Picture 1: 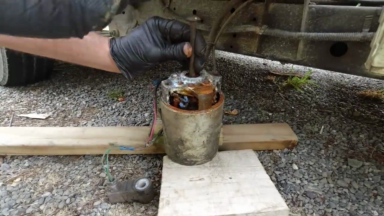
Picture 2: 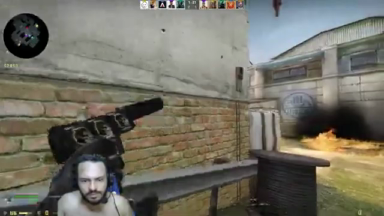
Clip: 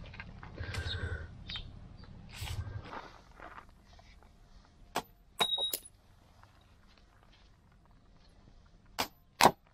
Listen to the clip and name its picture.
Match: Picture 1